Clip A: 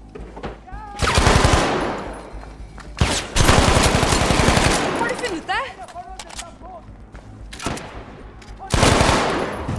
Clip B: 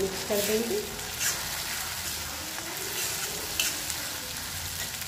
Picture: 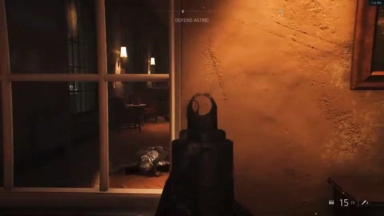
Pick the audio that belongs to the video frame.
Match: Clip A